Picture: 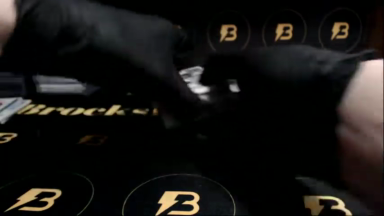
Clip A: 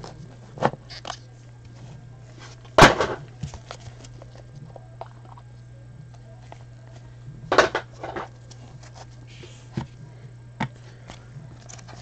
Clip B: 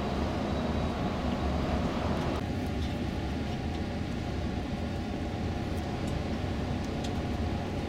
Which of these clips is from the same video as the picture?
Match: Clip A